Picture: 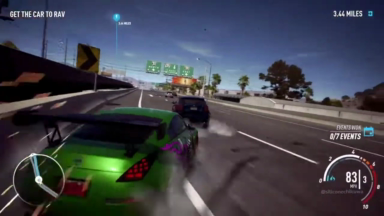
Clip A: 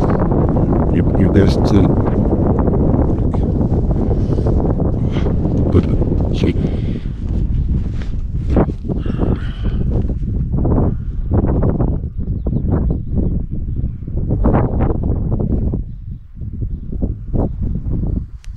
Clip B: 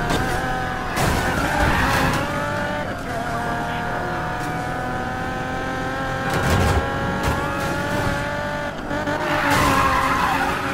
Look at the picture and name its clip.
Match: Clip B